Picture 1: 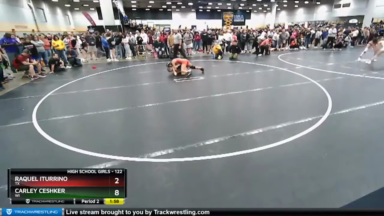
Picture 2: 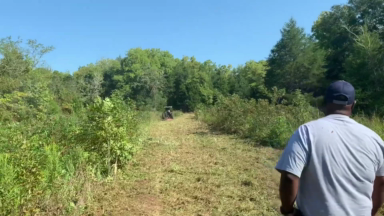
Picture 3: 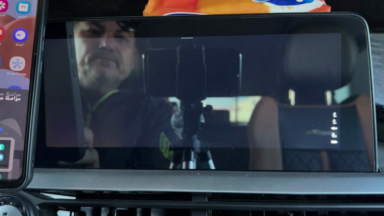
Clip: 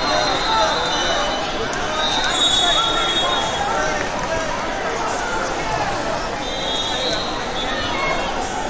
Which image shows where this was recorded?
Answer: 1